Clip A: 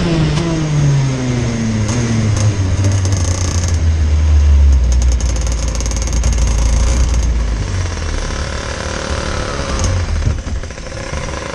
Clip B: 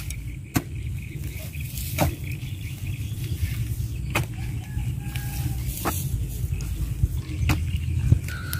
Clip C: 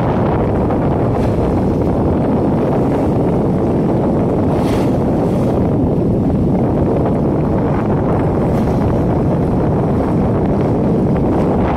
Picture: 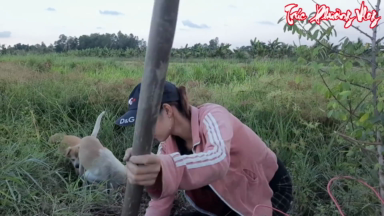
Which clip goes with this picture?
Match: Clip B